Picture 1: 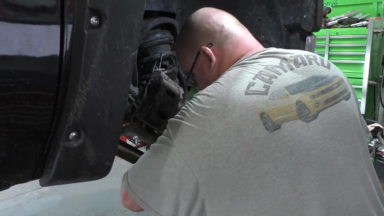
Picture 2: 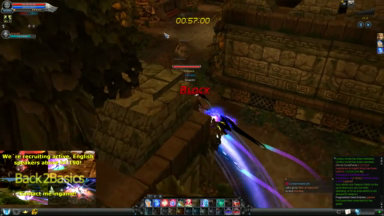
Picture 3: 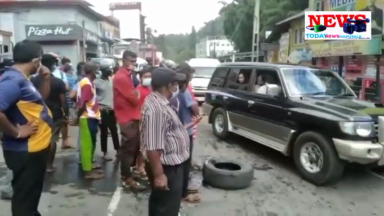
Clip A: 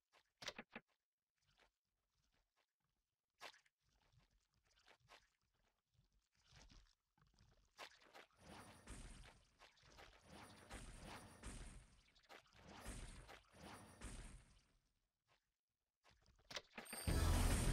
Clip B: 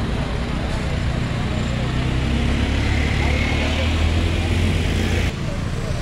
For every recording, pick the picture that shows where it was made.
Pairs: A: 2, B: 3